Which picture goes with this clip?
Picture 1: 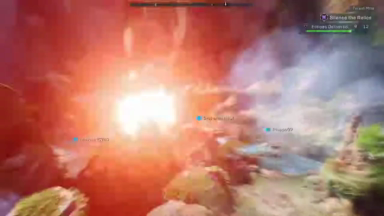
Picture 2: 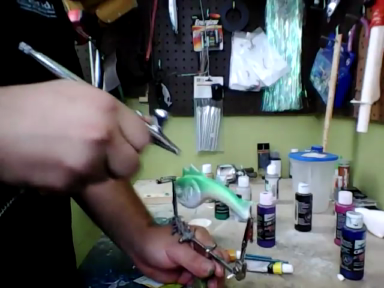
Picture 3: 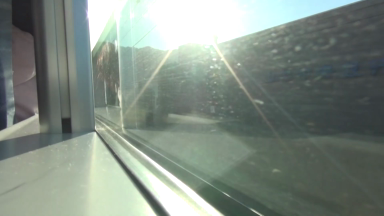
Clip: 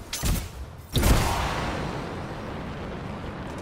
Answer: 1